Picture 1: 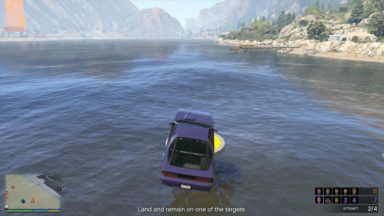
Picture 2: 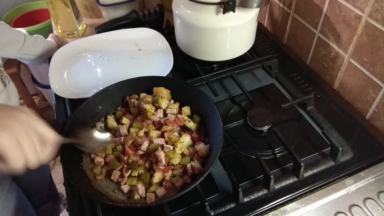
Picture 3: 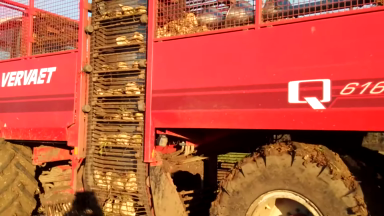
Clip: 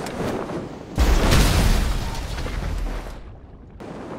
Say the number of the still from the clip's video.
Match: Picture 1